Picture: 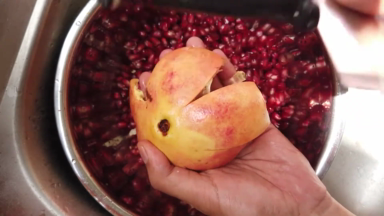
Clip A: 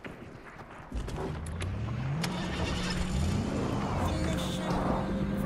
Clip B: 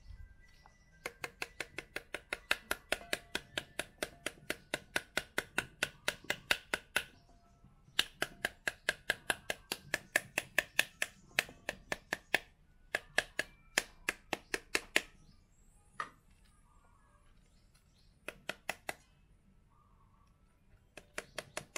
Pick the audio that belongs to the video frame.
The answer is B